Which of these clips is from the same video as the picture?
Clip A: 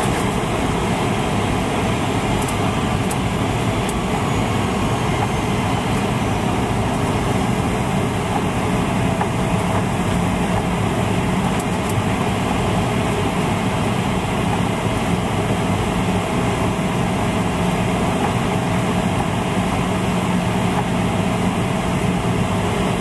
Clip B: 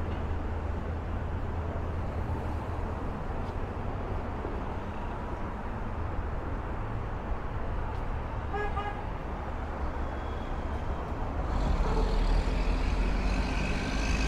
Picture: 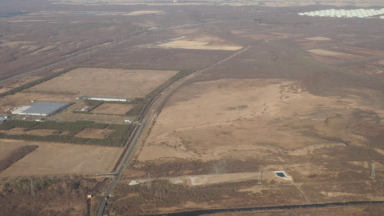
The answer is A